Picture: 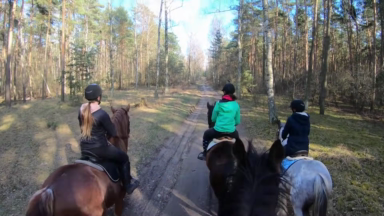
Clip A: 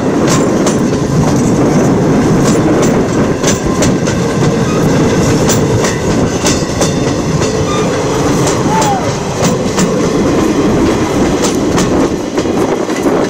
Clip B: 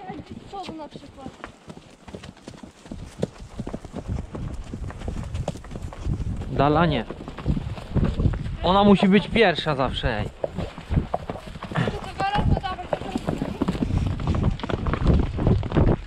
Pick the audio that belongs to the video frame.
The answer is B